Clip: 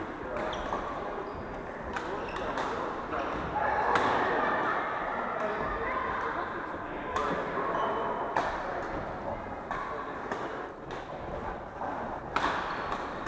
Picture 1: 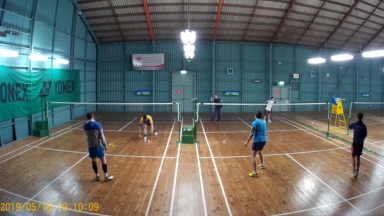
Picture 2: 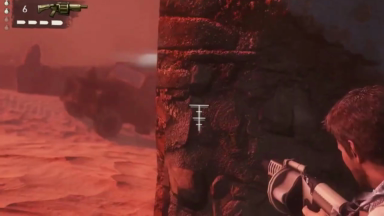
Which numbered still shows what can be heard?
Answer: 1